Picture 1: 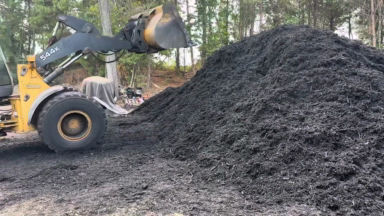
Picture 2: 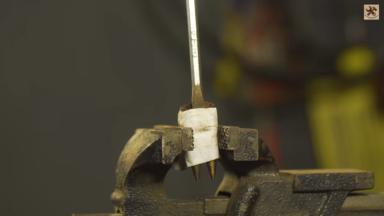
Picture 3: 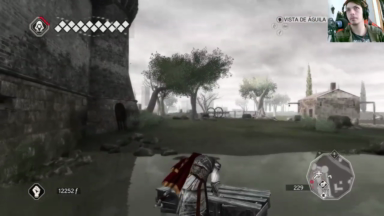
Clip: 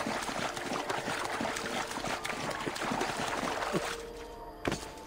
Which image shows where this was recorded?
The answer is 3